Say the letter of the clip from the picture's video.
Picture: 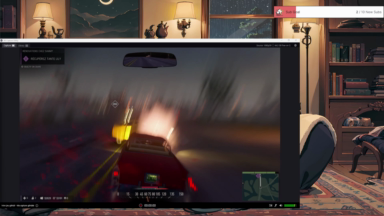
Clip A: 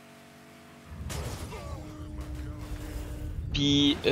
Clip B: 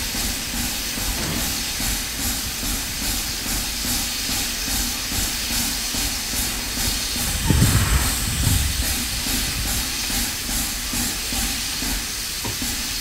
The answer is A